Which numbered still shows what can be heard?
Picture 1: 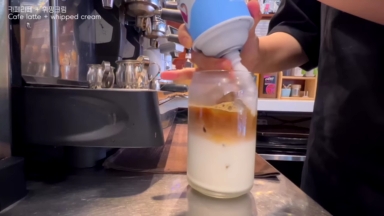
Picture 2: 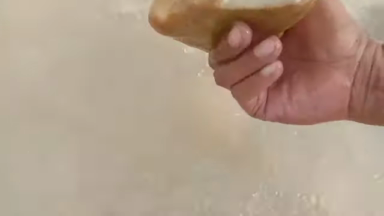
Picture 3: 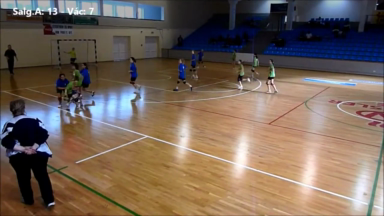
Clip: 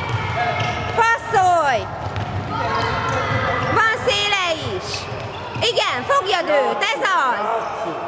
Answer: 3